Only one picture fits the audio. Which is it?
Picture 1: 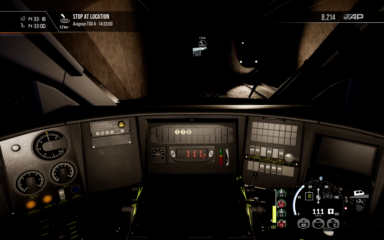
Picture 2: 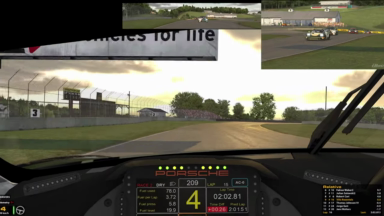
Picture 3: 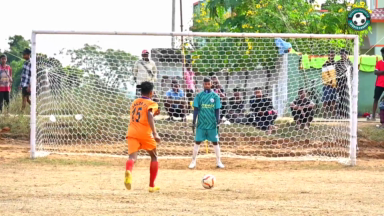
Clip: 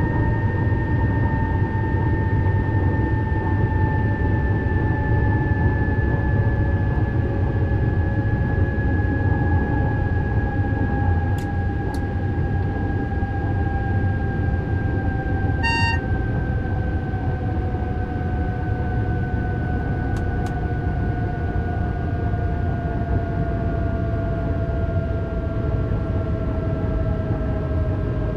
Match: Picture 1